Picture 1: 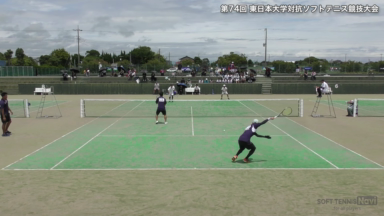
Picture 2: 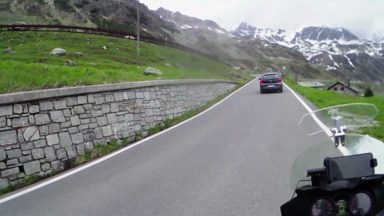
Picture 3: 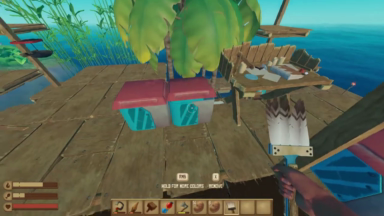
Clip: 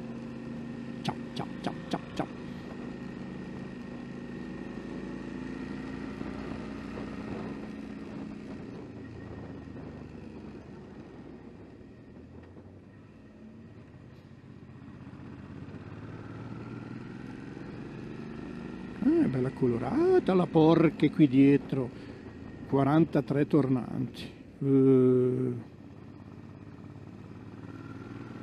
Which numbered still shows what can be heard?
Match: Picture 2